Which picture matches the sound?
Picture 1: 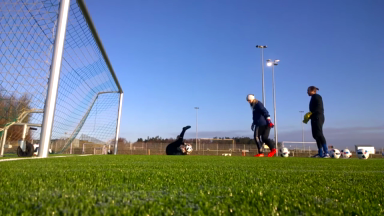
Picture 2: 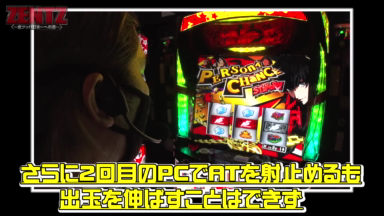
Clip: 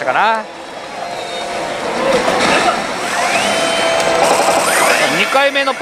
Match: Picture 2